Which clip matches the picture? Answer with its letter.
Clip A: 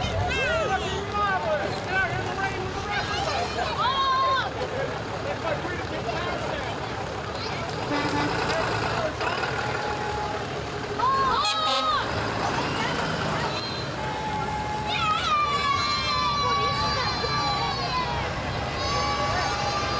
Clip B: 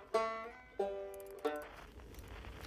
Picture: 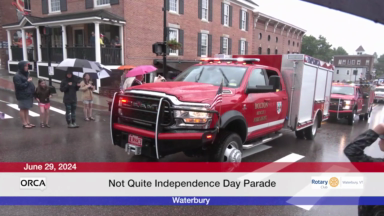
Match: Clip A